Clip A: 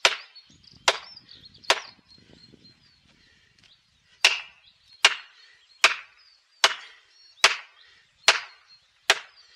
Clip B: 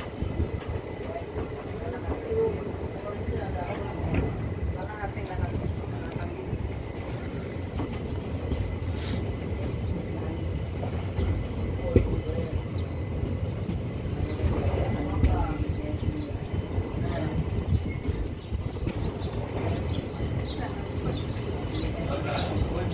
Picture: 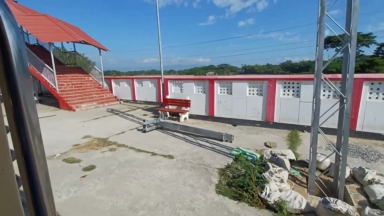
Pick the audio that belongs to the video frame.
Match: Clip B